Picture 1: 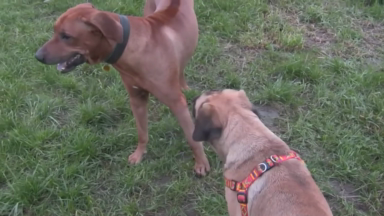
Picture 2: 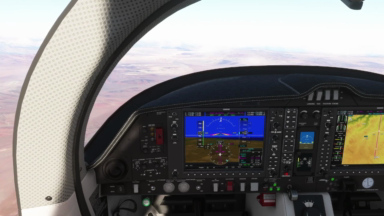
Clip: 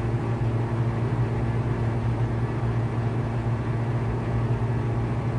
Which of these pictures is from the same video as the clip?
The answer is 2